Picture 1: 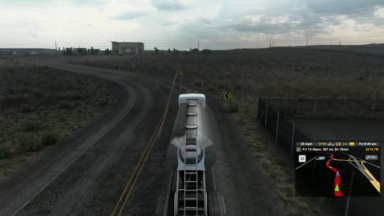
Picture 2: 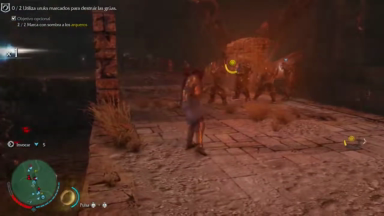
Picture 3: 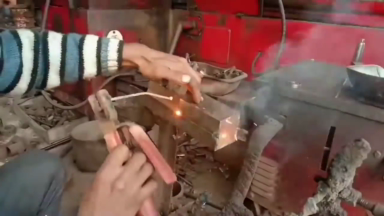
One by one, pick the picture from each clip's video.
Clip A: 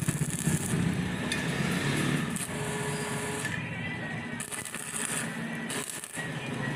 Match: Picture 3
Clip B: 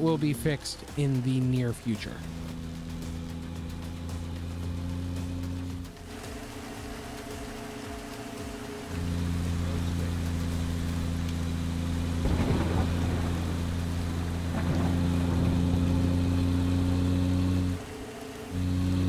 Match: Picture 1